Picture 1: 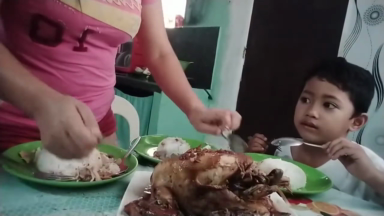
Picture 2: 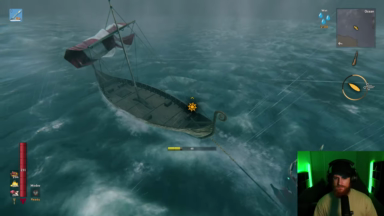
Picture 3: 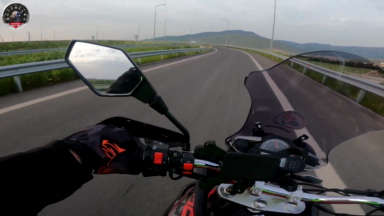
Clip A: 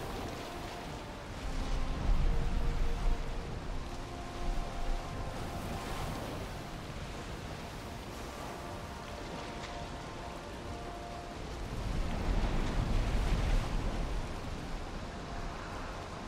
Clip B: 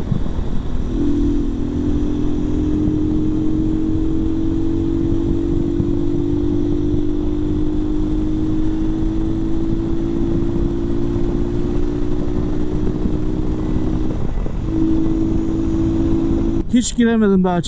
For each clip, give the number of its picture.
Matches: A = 2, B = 3